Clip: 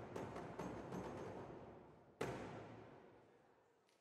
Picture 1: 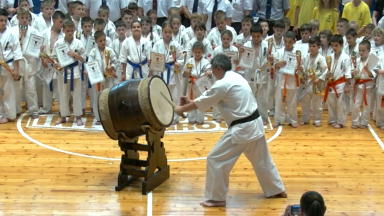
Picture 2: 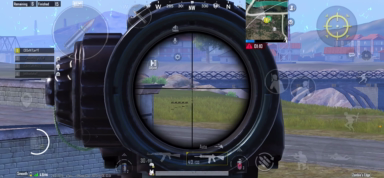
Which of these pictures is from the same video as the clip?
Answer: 1